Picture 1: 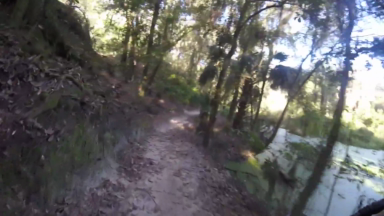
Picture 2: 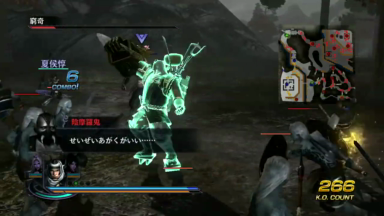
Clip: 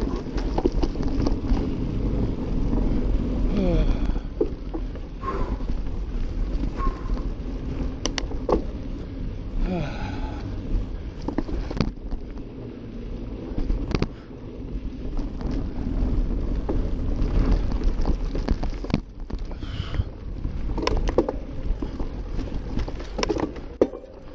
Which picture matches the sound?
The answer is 1